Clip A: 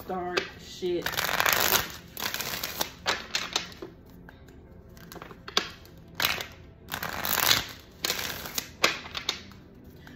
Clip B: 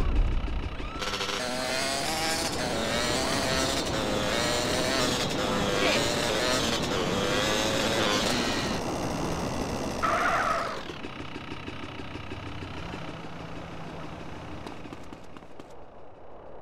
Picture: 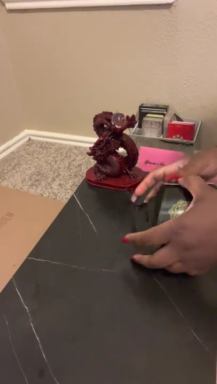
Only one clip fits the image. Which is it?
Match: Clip A